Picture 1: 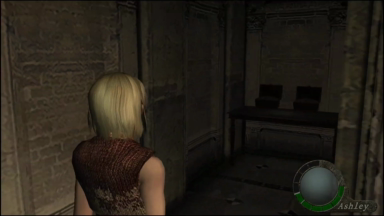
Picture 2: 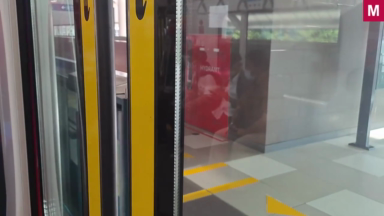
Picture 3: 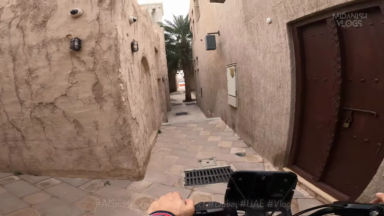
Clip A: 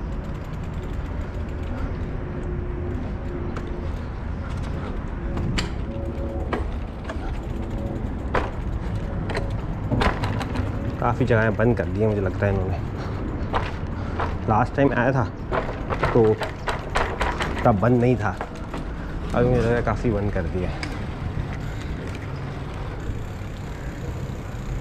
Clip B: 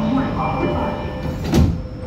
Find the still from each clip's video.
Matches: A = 3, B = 2